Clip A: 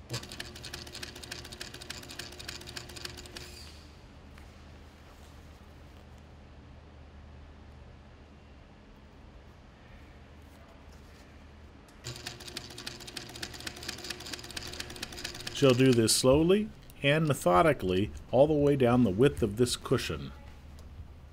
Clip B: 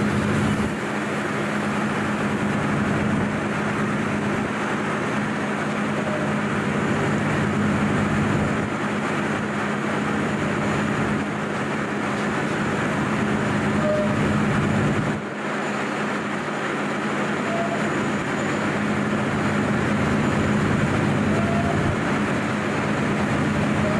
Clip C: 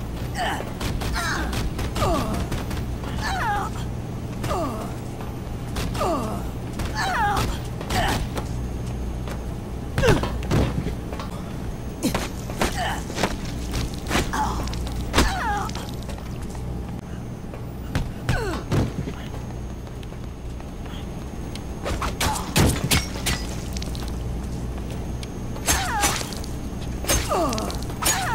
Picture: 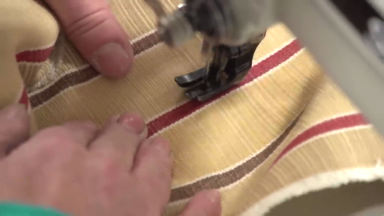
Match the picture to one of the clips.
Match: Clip A